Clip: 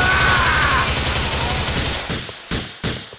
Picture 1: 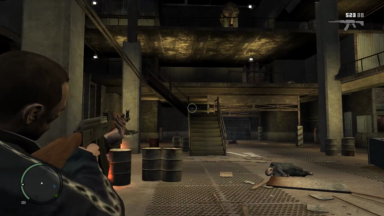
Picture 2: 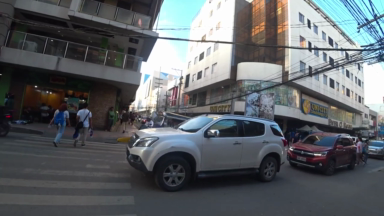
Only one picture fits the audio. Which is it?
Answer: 1